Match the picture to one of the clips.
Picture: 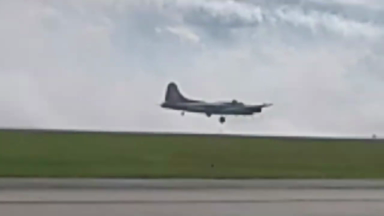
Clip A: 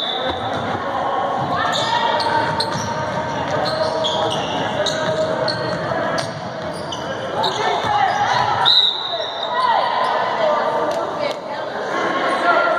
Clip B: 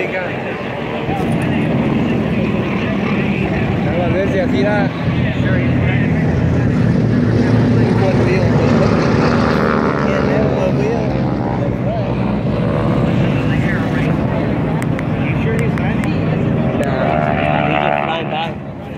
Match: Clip B